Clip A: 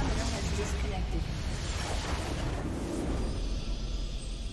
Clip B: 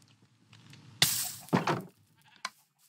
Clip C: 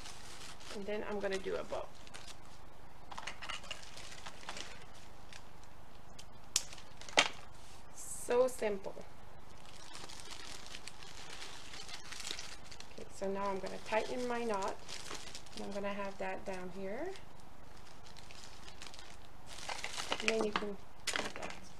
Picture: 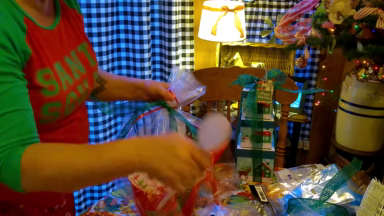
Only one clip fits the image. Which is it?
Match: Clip C